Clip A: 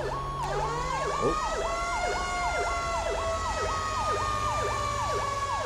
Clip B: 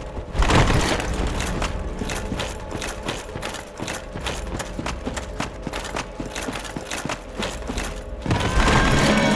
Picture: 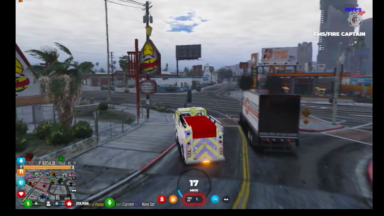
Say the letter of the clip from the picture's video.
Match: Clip A